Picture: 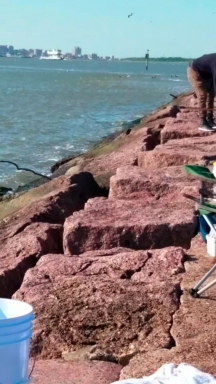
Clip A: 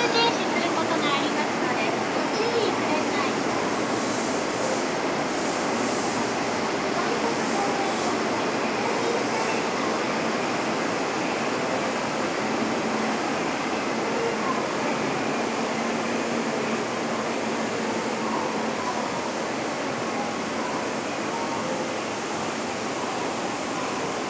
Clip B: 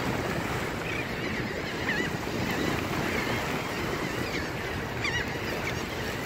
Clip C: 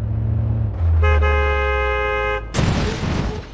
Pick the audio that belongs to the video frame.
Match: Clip B